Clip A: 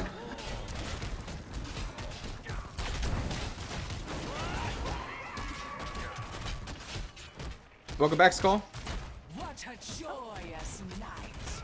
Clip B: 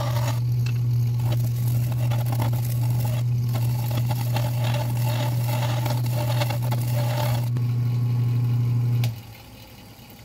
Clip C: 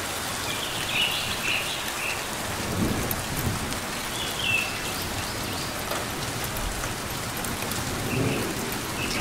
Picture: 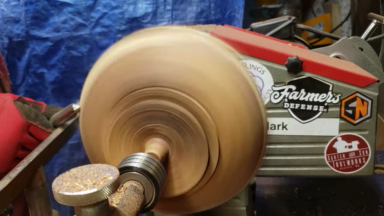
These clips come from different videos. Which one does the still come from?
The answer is B